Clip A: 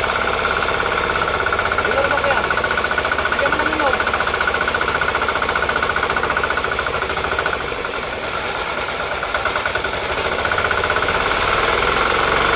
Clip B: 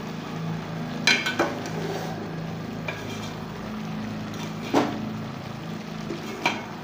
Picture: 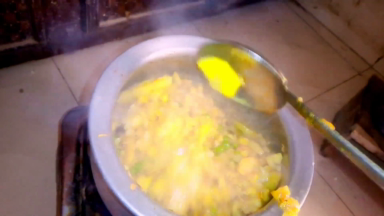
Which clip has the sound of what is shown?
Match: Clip B